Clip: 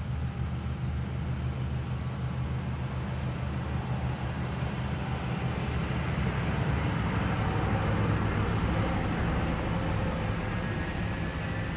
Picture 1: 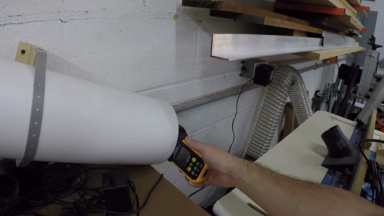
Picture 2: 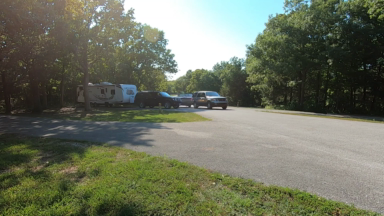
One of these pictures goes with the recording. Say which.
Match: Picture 2